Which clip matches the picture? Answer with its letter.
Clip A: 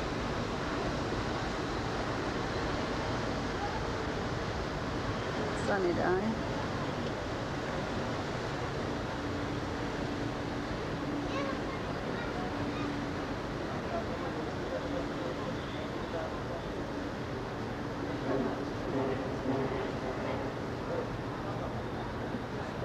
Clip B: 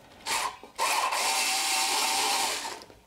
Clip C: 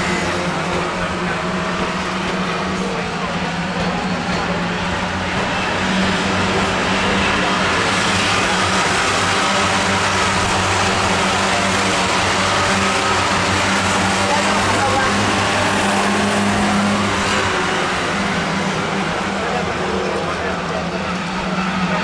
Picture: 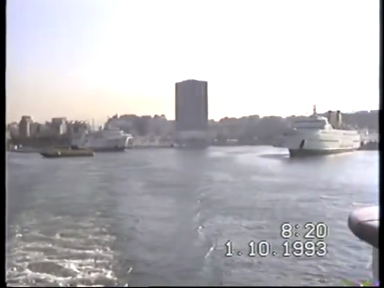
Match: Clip A